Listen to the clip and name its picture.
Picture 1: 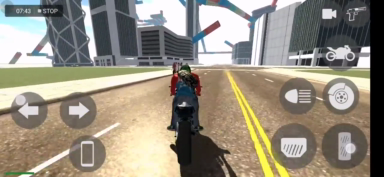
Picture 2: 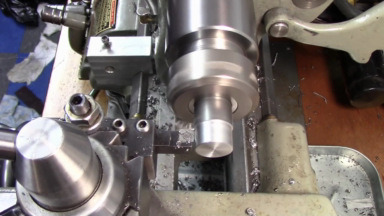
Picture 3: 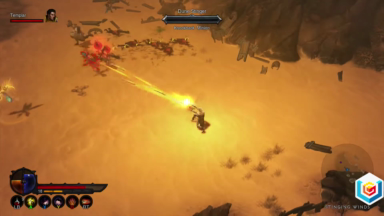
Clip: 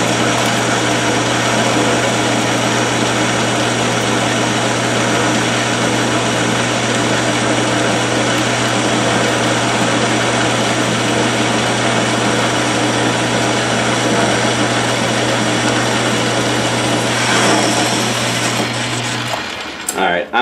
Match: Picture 2